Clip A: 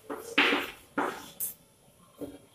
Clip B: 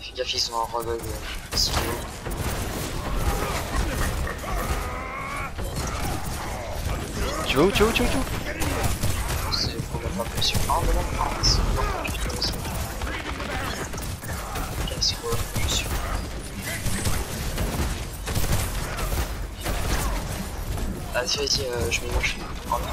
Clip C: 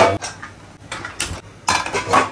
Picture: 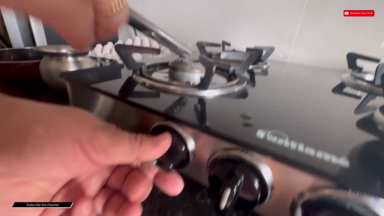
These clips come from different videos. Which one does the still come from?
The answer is C